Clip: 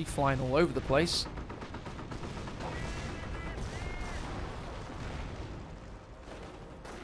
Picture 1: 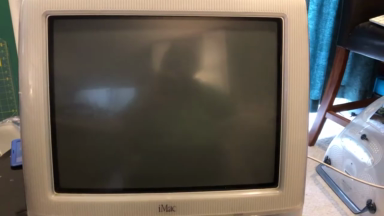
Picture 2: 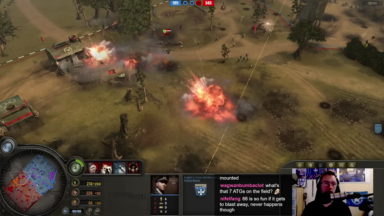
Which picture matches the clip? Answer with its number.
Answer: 2